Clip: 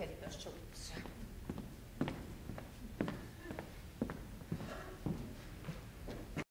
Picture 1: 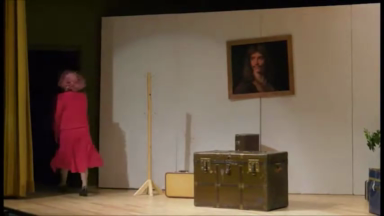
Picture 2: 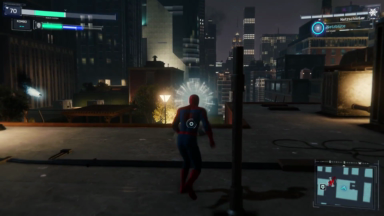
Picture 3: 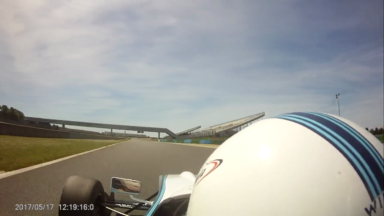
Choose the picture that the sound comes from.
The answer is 1